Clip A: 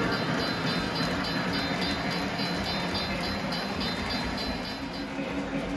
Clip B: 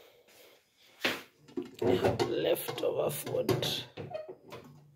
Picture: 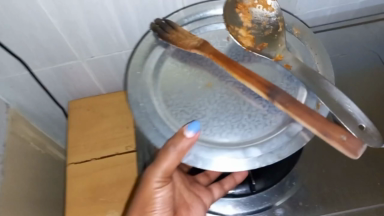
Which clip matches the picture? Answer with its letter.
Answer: B